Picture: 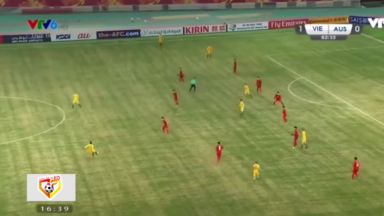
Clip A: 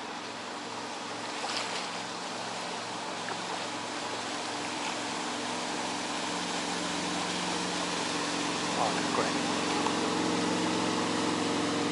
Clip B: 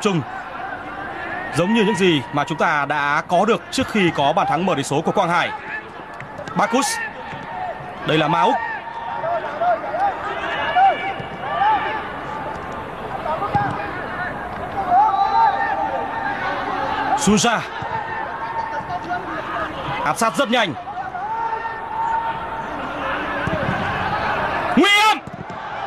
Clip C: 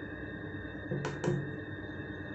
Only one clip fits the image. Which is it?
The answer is B